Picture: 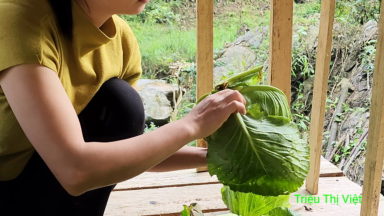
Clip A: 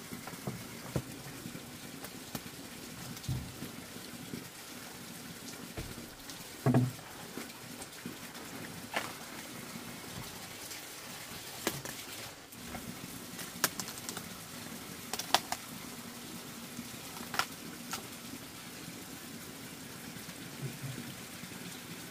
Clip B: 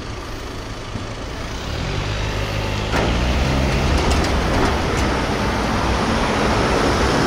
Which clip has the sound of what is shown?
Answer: A